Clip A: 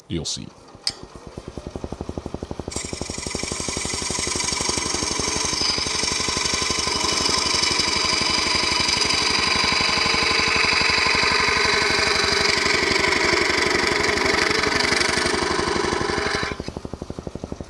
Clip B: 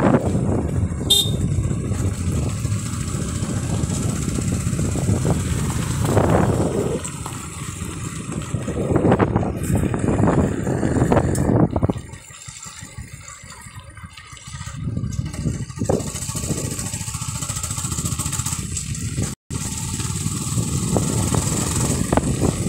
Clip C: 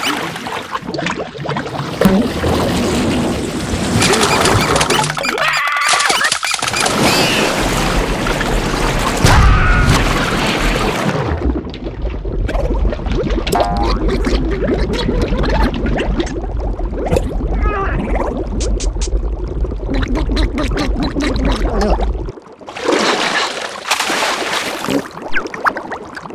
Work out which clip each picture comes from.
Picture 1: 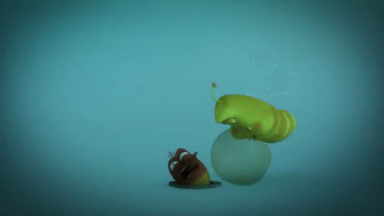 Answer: C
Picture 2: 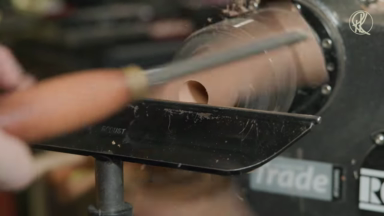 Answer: A